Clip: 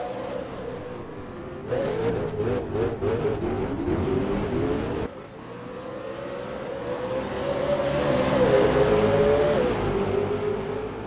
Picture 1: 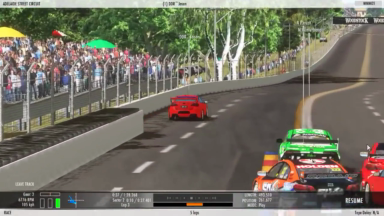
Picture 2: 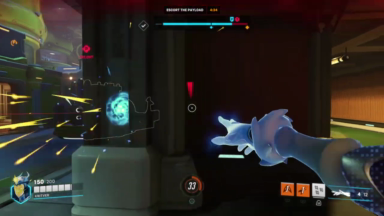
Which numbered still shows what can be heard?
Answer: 1